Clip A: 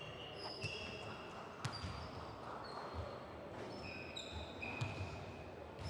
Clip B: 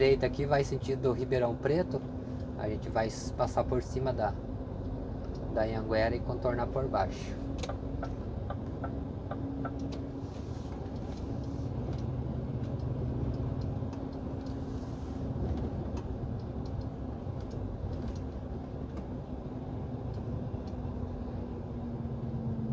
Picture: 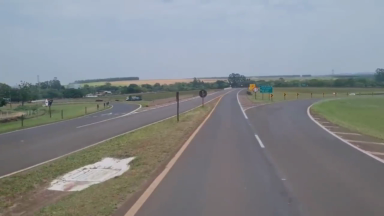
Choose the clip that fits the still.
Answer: B